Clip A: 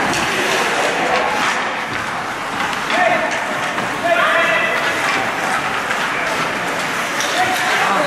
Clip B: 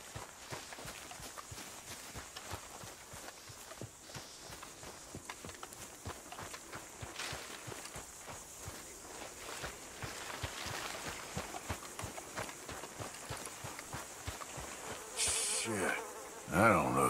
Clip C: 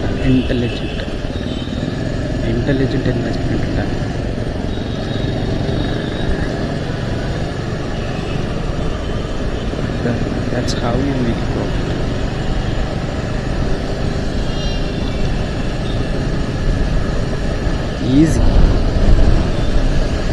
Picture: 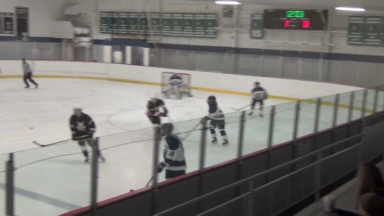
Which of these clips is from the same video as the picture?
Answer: A